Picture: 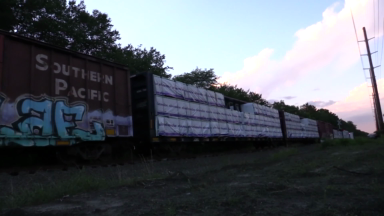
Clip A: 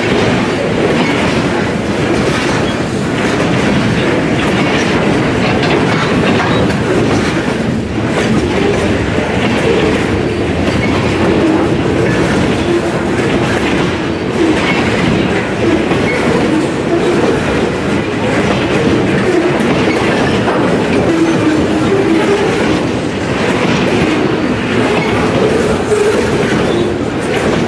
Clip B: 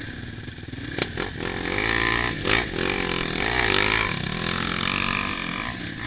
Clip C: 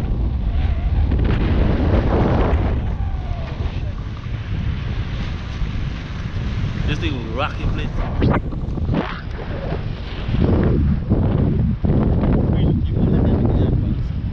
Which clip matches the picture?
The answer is A